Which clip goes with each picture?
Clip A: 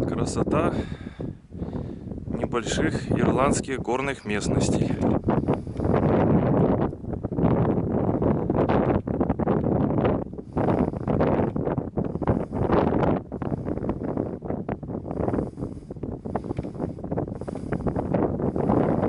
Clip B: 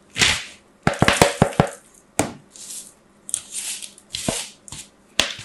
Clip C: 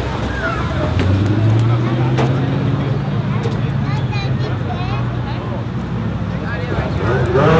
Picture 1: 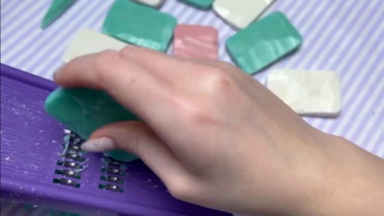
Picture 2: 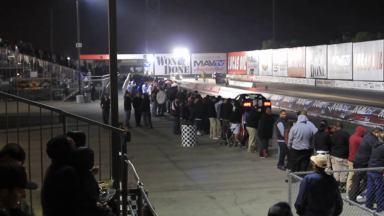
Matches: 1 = B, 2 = C